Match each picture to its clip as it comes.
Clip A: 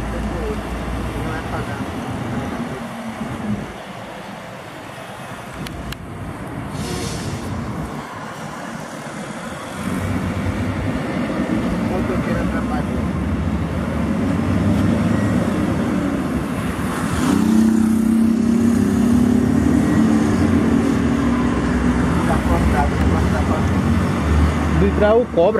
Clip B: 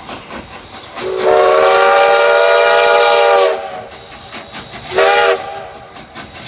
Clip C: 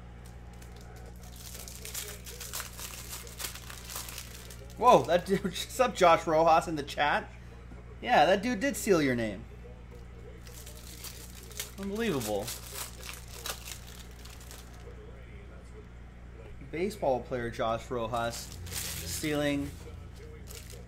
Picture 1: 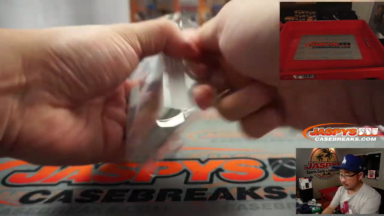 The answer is C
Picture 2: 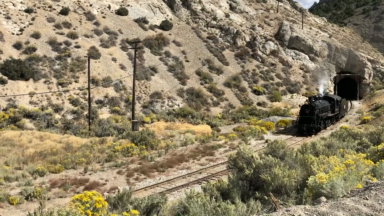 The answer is B